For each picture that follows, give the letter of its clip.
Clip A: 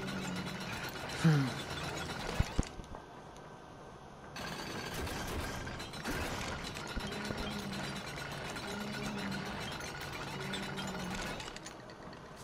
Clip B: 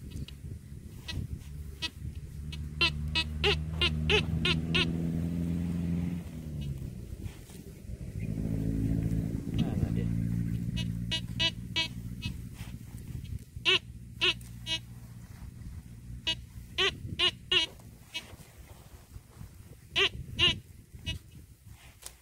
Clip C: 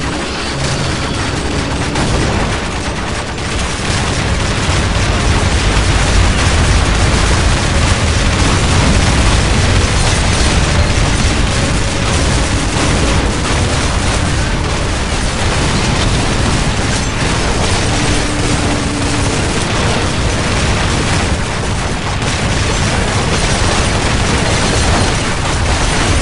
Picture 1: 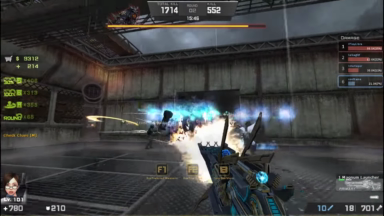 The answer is C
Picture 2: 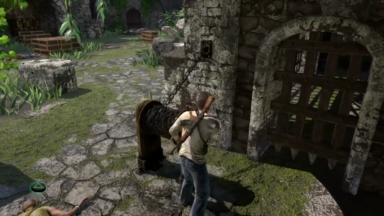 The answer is A